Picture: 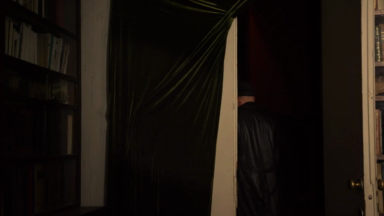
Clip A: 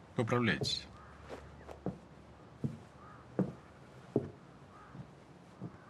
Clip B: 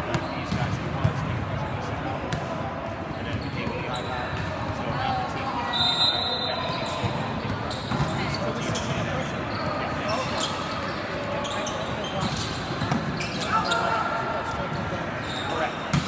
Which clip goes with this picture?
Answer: A